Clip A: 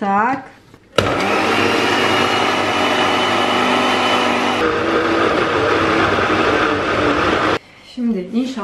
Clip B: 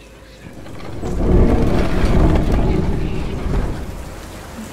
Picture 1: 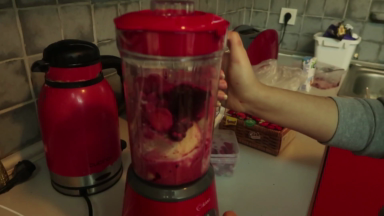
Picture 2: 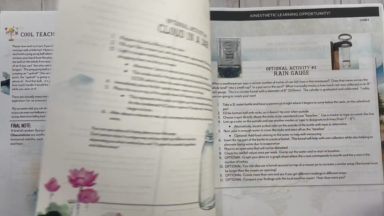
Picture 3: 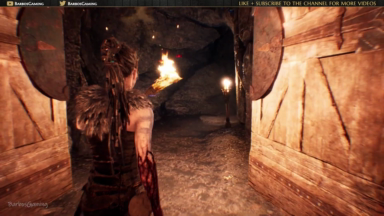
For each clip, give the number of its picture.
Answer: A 1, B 3